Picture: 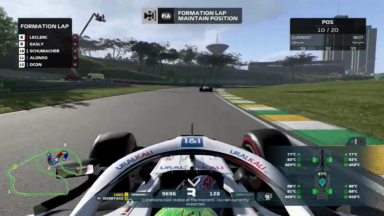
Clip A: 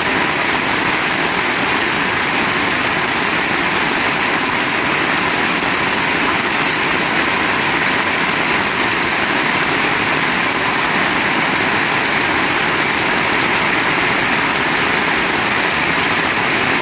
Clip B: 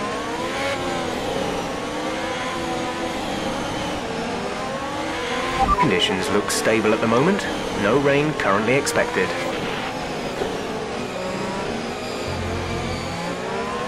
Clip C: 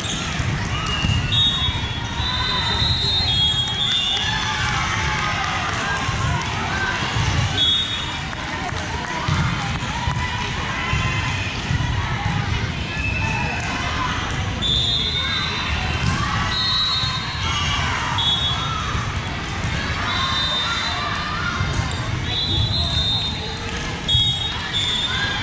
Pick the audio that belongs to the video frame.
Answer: B